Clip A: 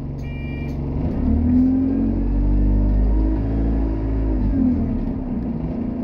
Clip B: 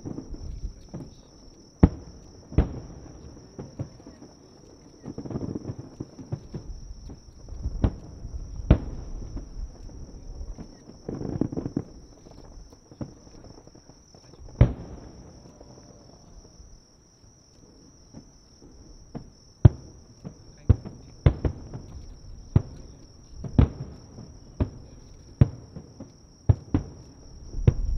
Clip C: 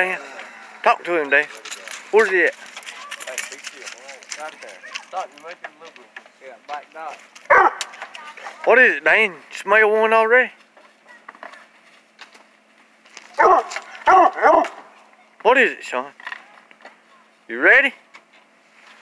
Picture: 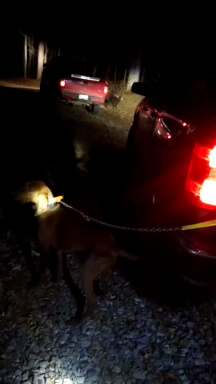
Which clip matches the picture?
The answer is C